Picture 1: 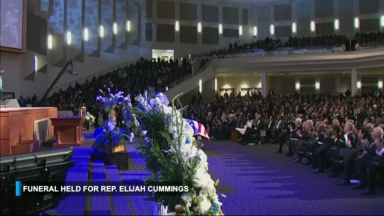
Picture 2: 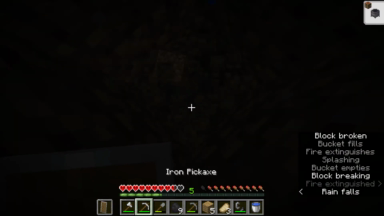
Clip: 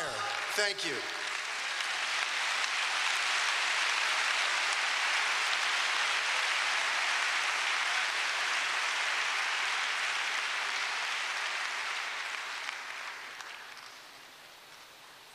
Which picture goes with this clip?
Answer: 1